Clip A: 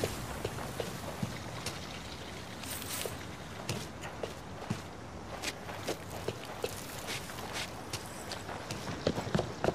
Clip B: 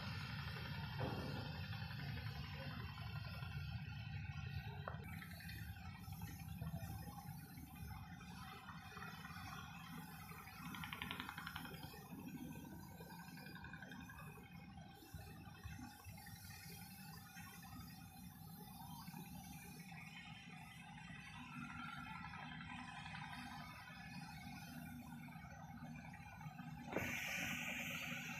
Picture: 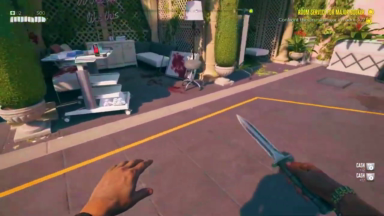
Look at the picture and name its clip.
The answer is A